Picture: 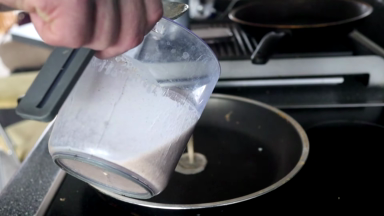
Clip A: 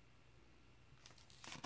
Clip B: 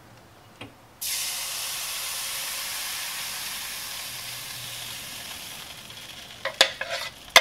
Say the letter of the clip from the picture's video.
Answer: B